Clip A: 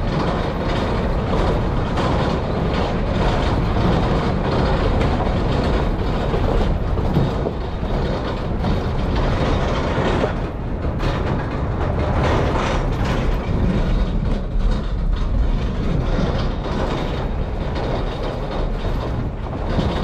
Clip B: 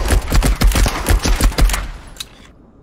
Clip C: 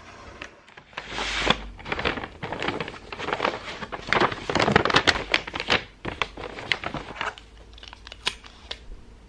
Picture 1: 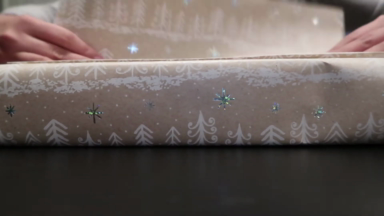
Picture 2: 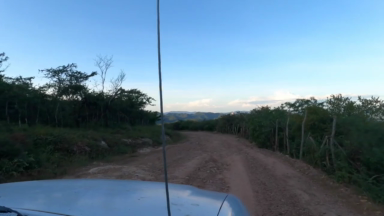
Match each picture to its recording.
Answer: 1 C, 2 A